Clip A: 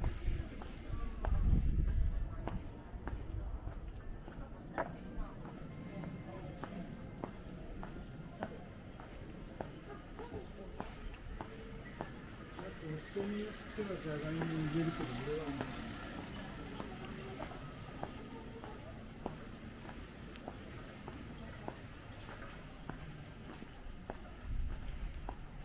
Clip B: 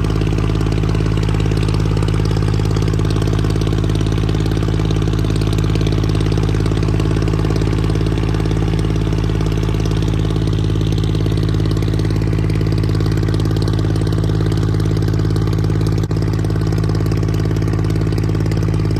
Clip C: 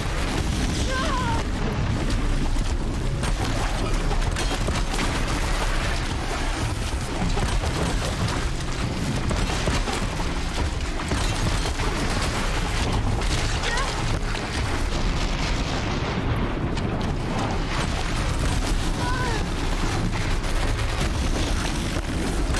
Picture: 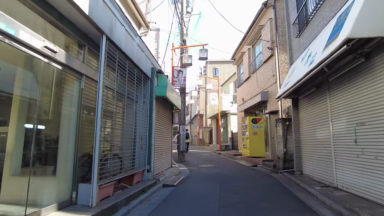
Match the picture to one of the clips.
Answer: A